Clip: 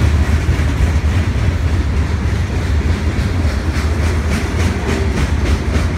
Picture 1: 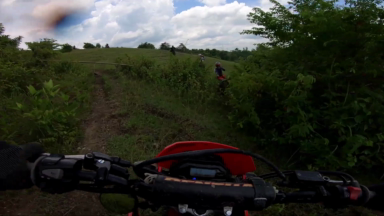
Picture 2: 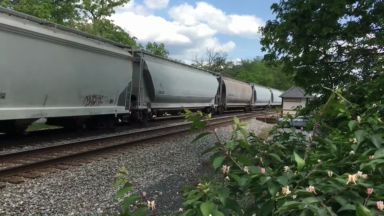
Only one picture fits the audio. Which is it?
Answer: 2